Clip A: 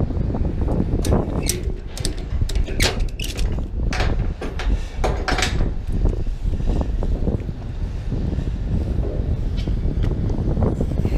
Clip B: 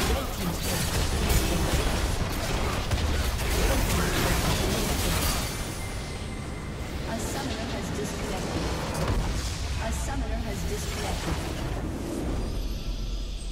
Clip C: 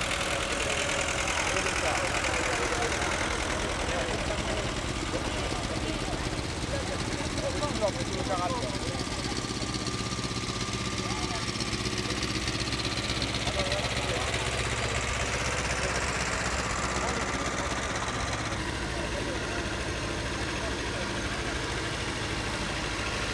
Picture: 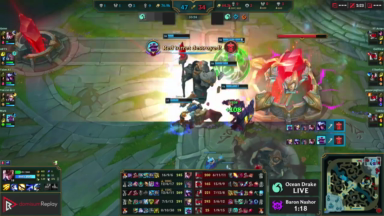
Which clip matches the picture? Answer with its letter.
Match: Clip B